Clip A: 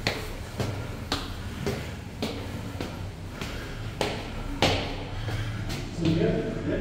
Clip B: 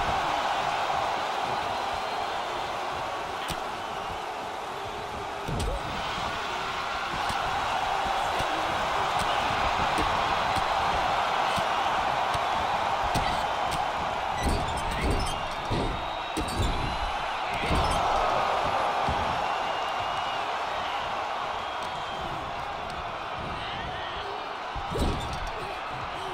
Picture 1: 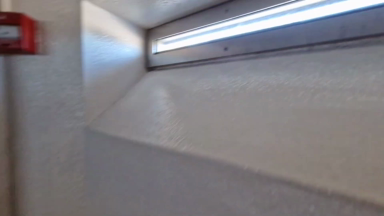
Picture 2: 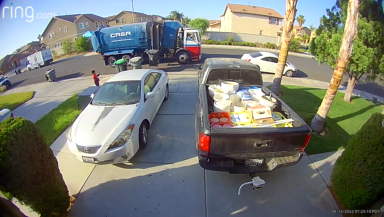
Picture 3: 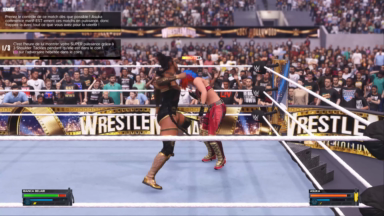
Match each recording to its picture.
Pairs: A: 1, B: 3